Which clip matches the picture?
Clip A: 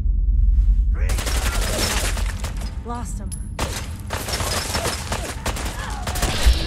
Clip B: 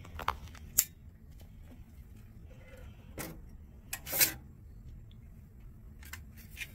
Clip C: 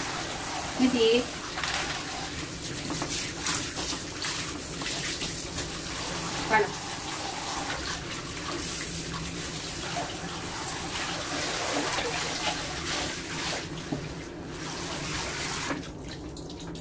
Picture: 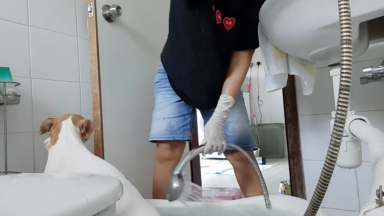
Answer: C